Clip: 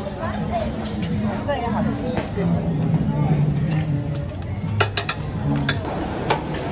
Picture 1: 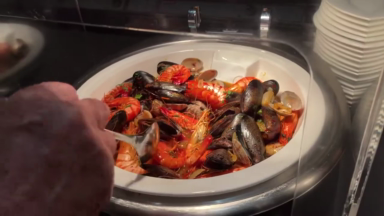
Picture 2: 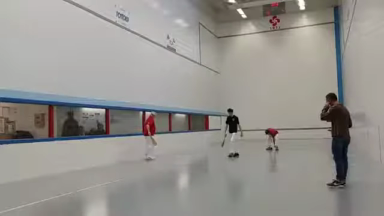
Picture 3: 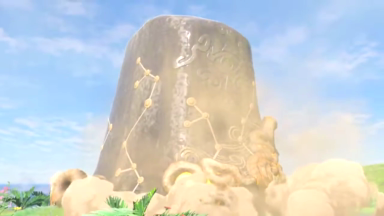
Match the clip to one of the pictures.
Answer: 1